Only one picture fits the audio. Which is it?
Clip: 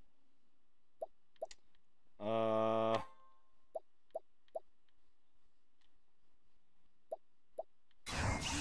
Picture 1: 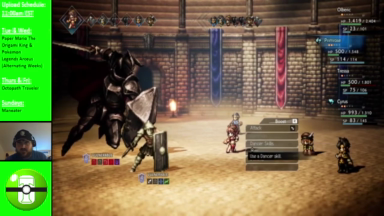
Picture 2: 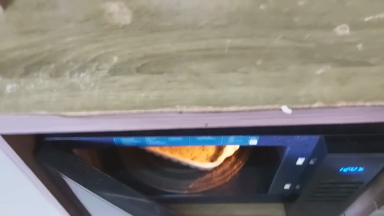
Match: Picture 1